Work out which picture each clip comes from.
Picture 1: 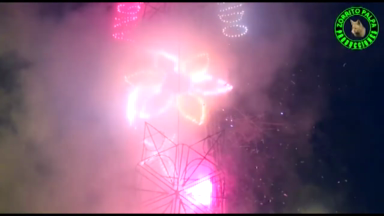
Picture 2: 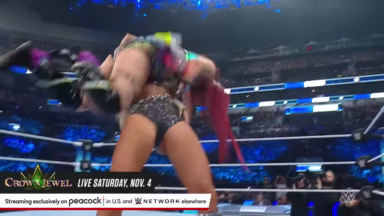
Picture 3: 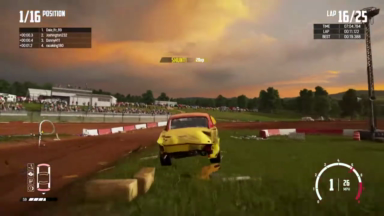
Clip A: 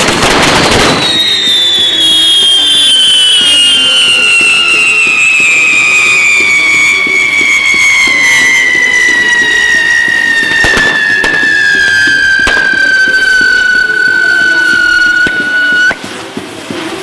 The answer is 1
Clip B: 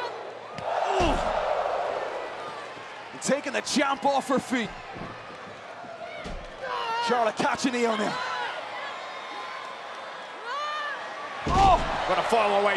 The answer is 2